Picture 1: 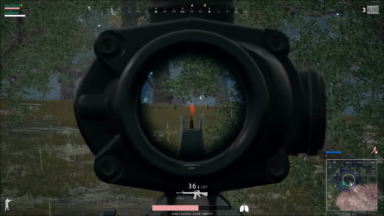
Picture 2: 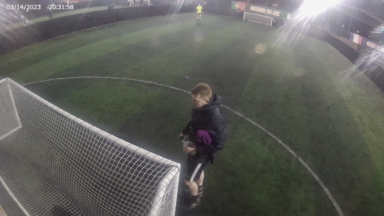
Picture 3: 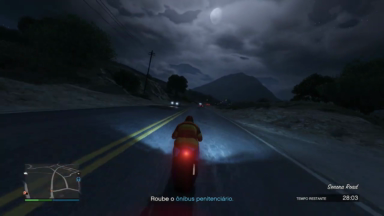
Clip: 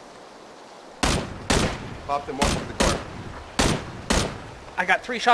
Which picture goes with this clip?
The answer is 1